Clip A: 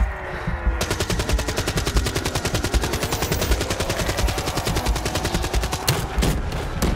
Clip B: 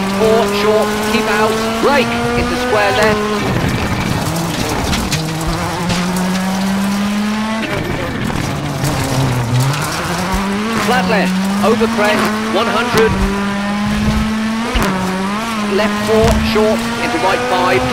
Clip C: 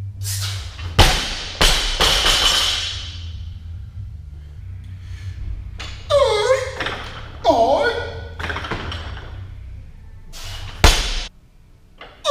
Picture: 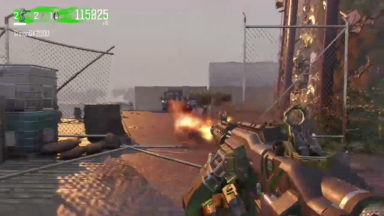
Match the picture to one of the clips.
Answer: A